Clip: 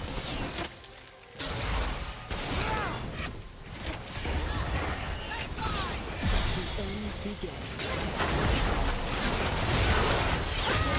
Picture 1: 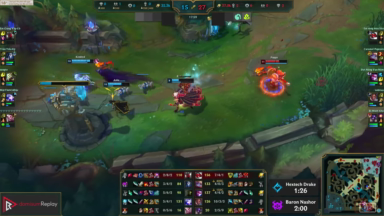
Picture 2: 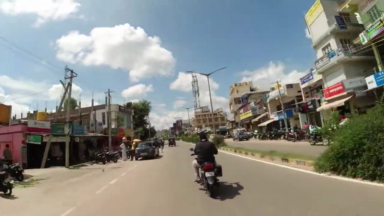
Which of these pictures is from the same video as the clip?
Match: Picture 1